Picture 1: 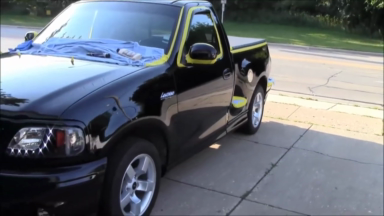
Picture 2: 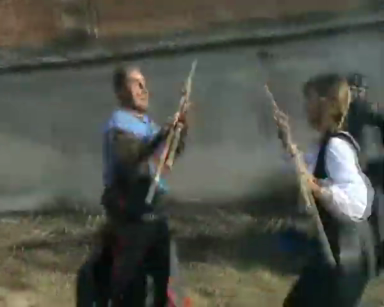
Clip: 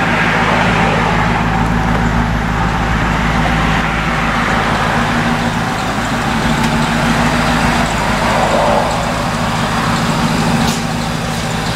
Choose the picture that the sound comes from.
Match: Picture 1